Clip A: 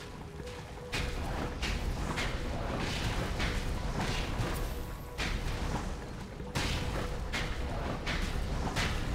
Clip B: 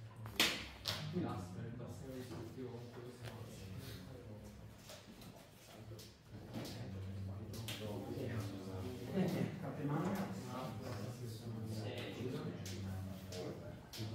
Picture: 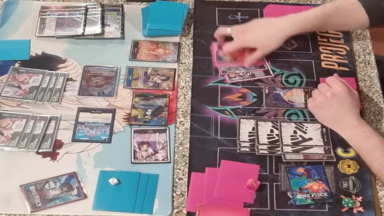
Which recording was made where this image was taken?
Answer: B